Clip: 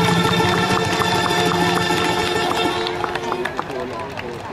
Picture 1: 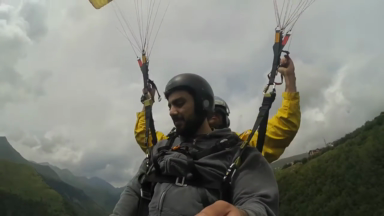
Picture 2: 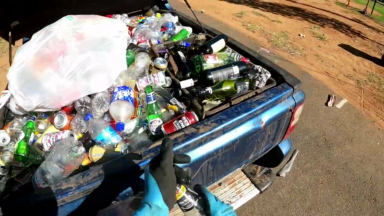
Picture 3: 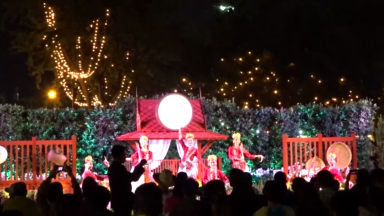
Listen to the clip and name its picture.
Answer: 3